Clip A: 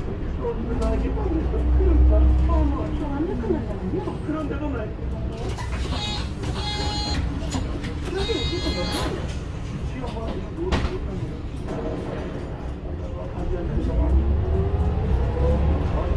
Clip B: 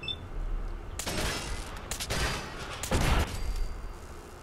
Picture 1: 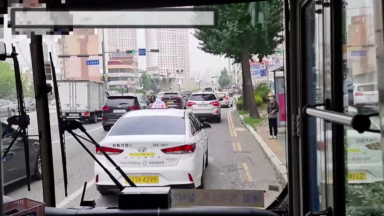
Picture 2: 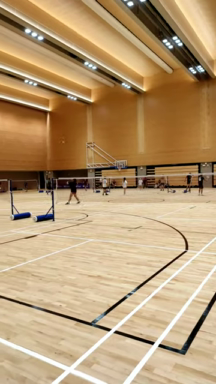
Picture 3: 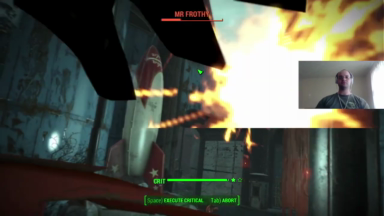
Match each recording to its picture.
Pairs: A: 1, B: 3